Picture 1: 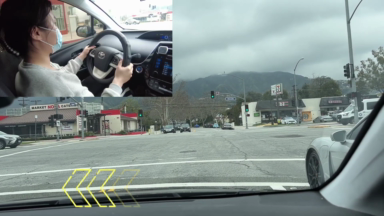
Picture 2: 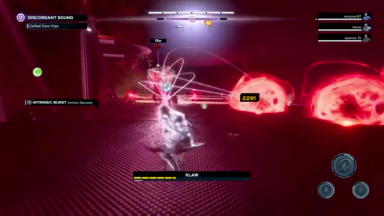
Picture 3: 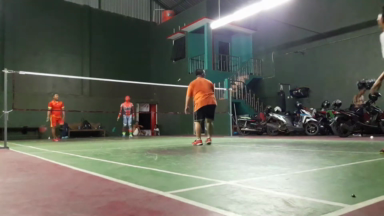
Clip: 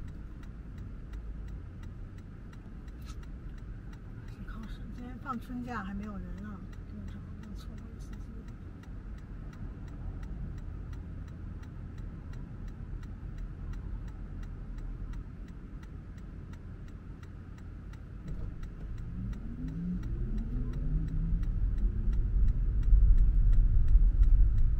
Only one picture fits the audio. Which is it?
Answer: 1